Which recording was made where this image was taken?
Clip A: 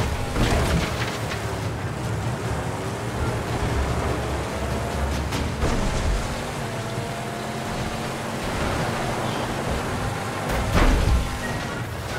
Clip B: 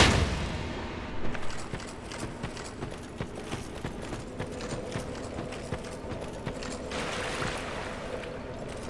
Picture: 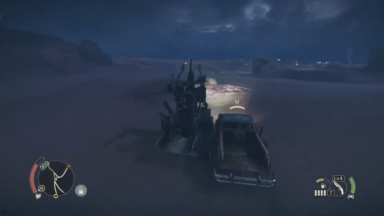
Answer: A